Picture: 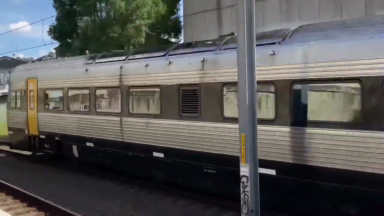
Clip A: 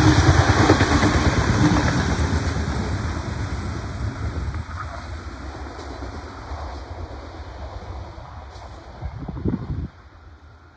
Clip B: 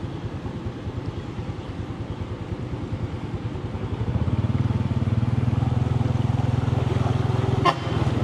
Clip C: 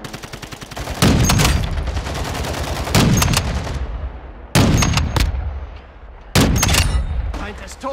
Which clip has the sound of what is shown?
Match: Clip A